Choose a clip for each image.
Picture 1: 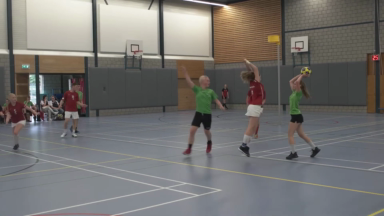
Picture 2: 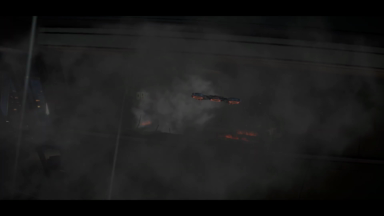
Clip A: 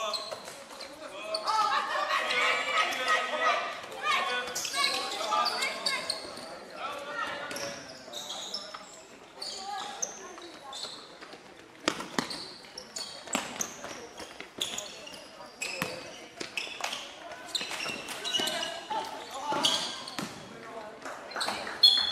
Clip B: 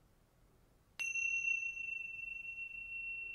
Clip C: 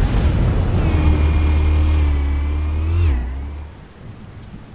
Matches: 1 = A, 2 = C